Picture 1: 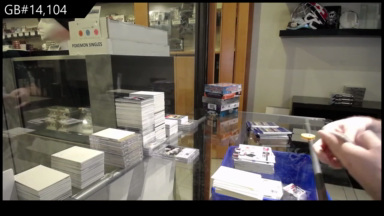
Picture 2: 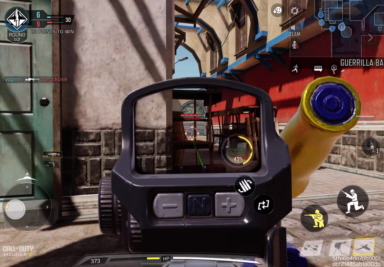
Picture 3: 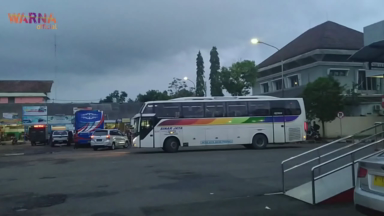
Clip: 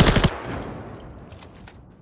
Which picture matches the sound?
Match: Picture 2